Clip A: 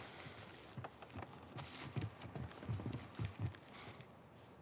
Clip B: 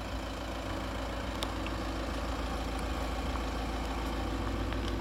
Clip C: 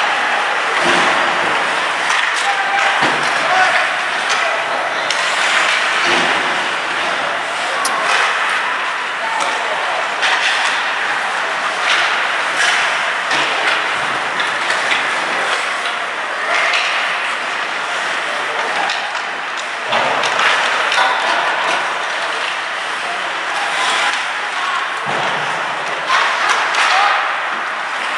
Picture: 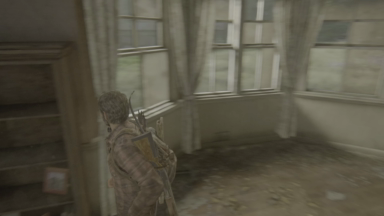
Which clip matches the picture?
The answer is A